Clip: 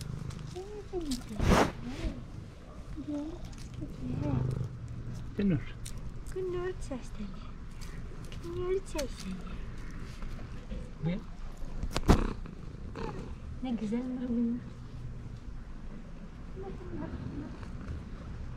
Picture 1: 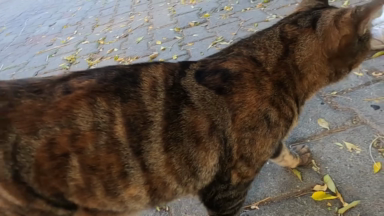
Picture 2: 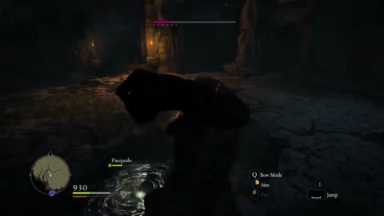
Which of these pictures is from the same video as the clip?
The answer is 1